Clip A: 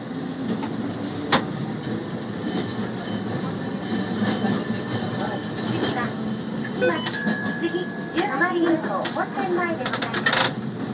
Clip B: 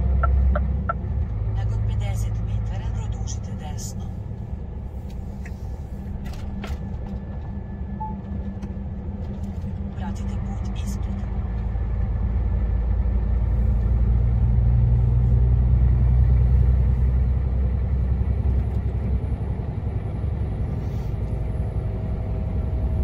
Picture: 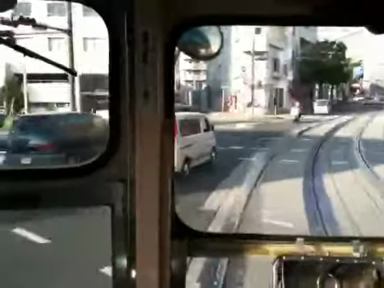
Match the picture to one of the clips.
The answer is A